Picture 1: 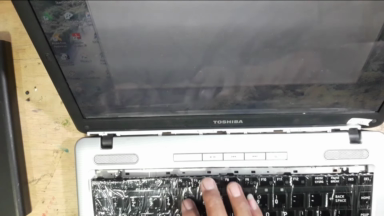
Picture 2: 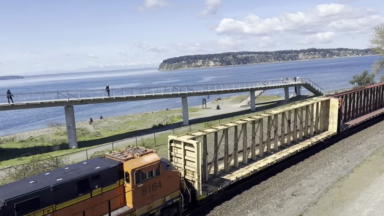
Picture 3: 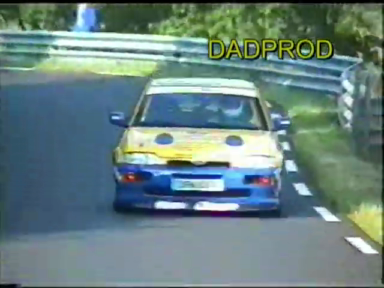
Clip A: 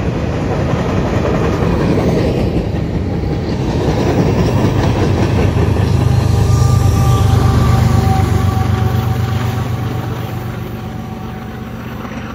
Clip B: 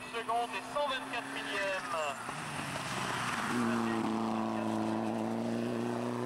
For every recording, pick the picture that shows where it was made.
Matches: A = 2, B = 3